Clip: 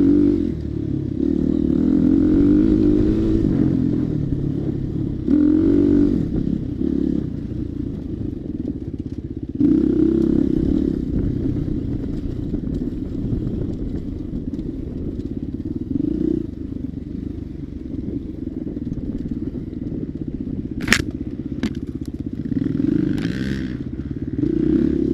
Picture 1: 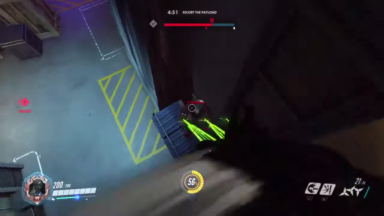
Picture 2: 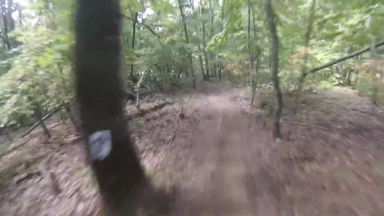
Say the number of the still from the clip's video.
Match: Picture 2